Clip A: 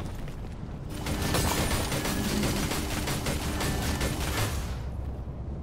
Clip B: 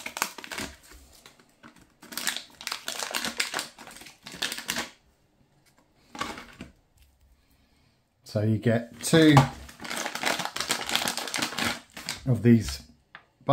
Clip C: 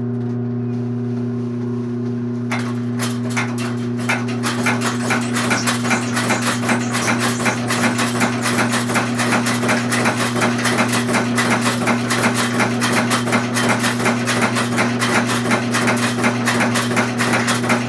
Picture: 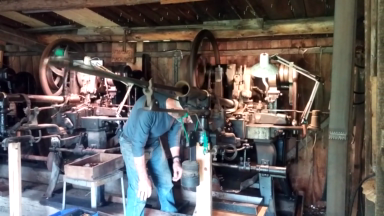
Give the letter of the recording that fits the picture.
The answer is C